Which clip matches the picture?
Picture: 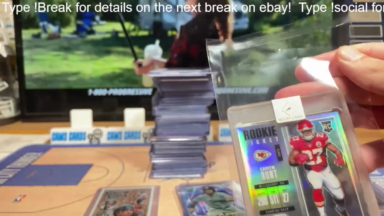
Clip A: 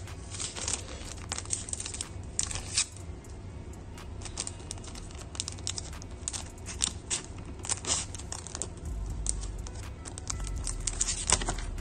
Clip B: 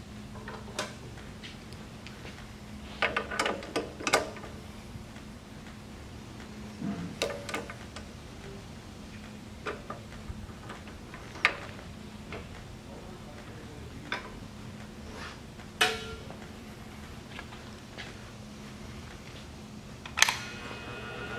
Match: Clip A